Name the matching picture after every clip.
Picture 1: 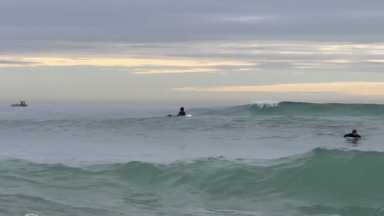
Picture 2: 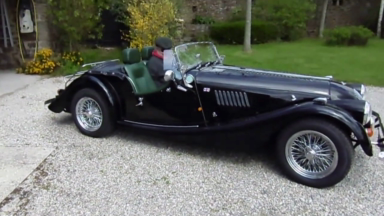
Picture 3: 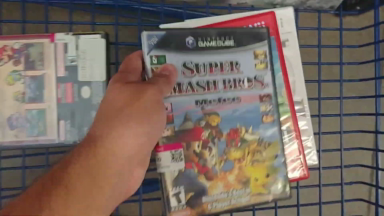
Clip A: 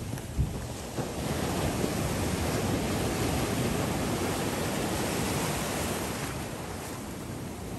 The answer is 1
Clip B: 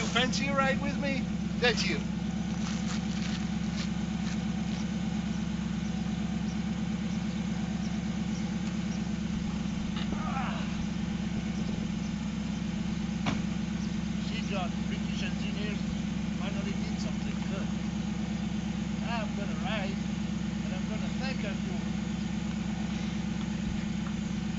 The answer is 2